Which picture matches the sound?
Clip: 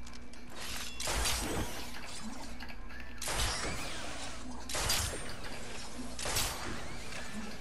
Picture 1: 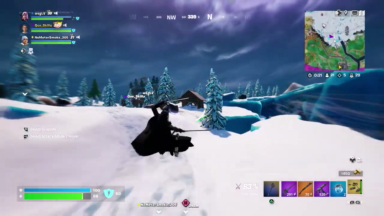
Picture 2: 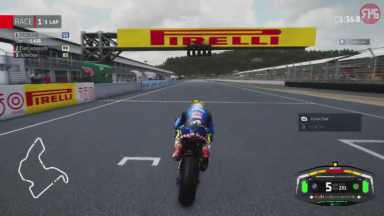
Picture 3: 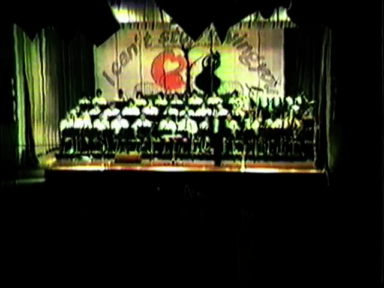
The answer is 1